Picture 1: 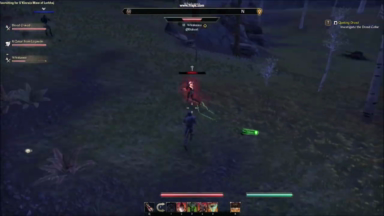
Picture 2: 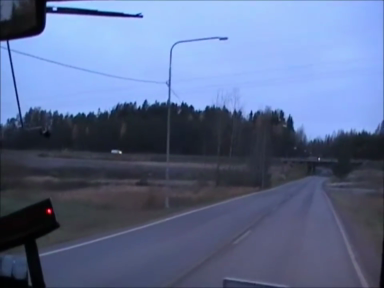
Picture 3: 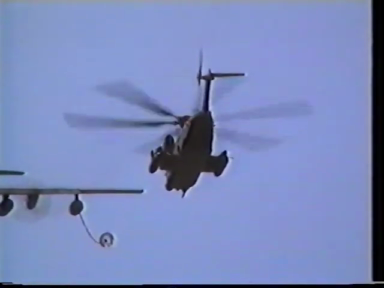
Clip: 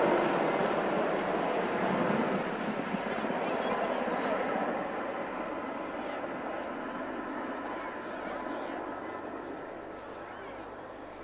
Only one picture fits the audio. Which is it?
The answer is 3